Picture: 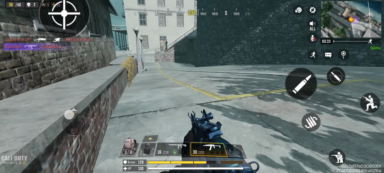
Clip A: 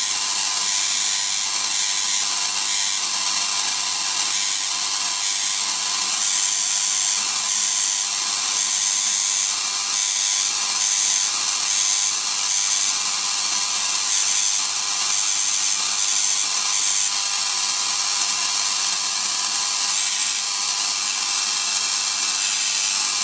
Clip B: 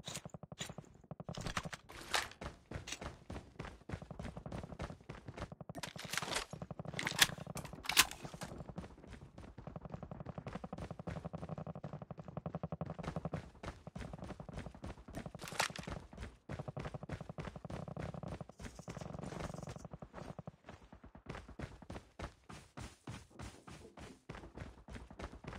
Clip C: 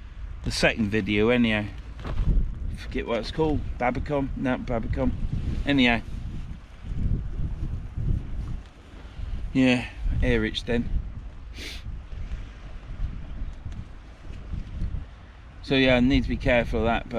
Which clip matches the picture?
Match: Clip B